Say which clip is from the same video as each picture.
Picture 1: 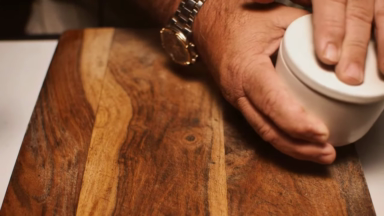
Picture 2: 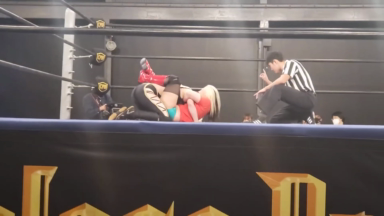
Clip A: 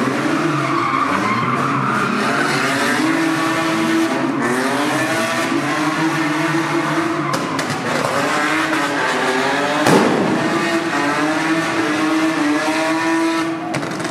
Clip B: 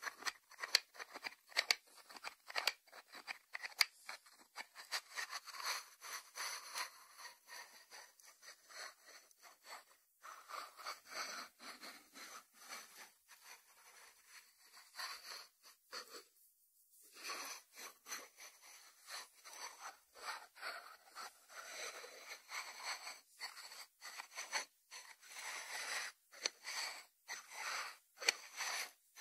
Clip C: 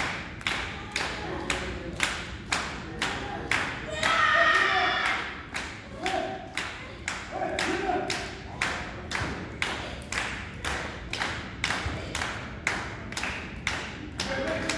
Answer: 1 B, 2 C